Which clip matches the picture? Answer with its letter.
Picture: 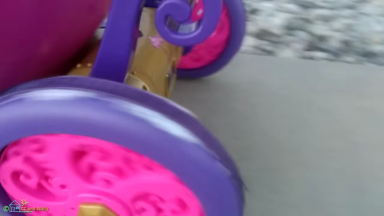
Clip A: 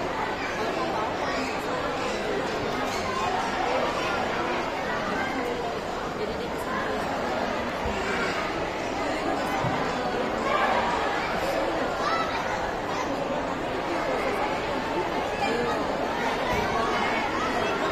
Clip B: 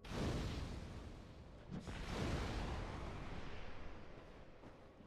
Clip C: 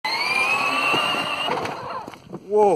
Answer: C